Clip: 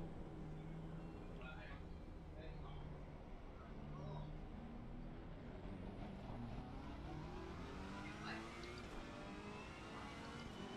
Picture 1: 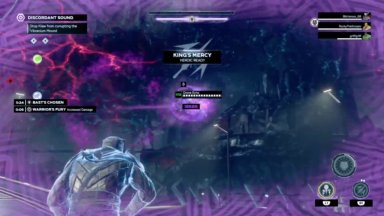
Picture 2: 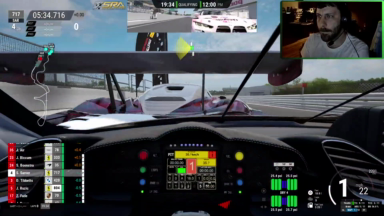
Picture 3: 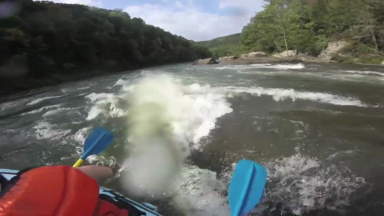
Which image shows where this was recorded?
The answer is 2